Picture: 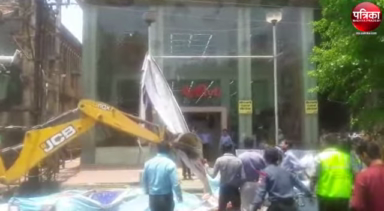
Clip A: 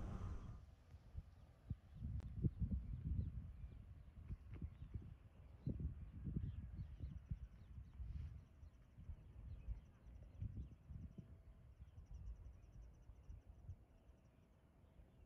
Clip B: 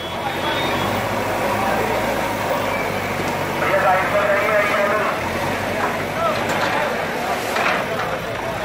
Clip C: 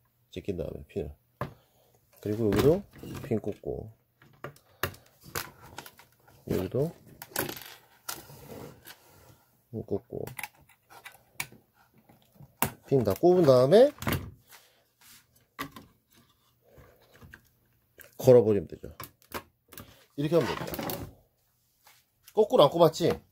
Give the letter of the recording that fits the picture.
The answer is B